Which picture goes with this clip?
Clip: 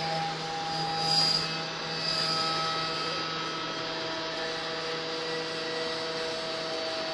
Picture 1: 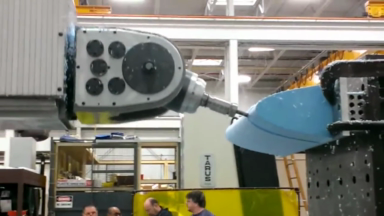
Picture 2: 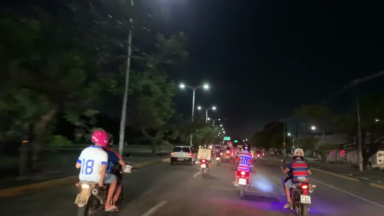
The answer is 1